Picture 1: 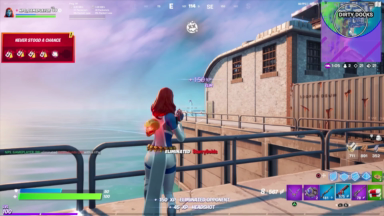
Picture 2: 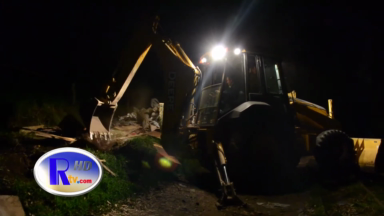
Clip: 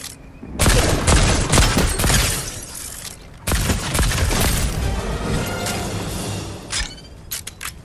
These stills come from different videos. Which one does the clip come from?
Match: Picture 1